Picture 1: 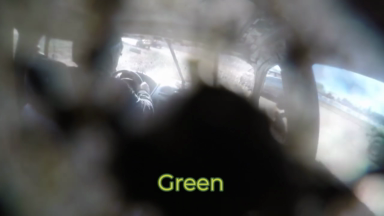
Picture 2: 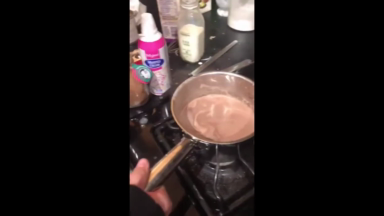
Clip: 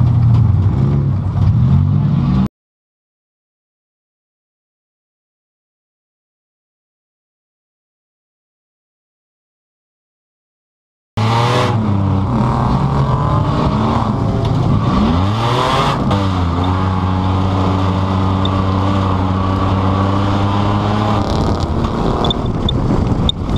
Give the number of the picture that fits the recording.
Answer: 1